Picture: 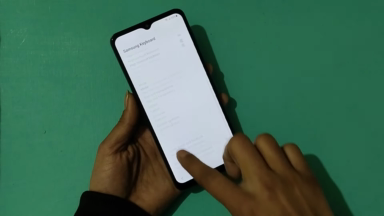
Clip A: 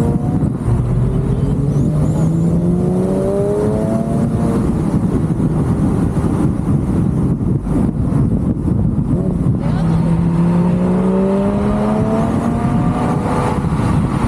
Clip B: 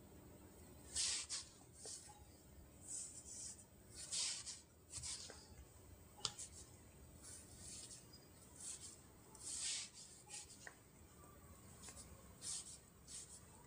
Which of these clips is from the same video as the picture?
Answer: B